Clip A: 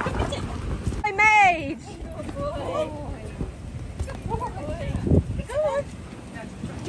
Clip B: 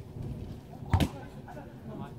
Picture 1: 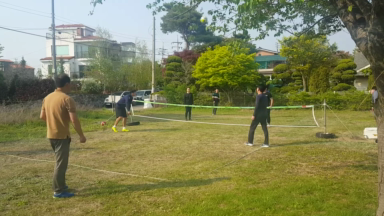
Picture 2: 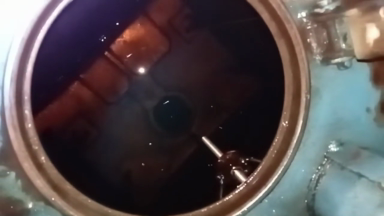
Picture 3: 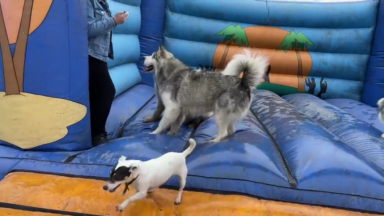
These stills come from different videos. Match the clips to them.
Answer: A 3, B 1